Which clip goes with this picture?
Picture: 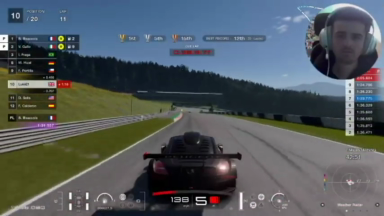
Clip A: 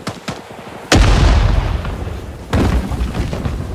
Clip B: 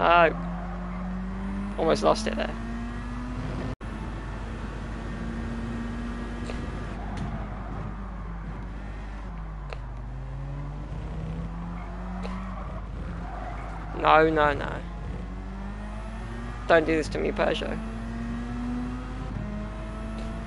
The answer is B